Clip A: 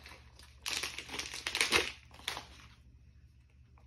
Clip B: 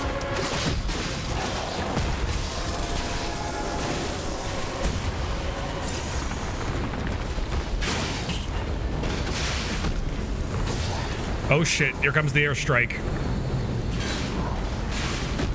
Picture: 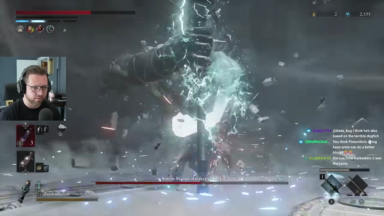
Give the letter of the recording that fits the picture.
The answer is B